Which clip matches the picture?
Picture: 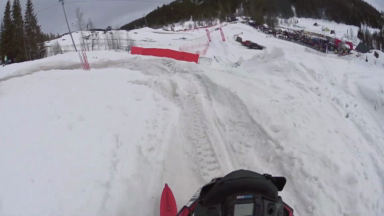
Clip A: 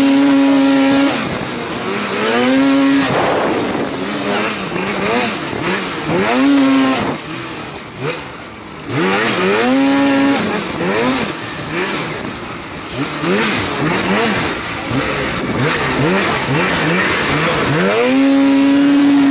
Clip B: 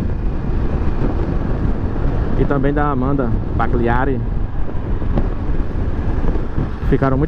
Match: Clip A